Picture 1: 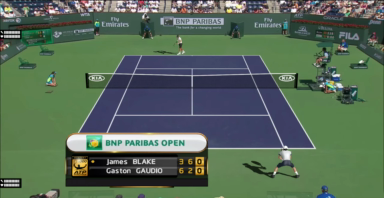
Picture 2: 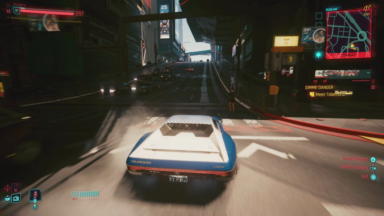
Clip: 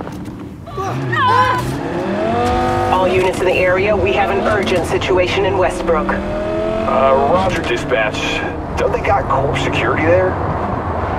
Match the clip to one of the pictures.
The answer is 2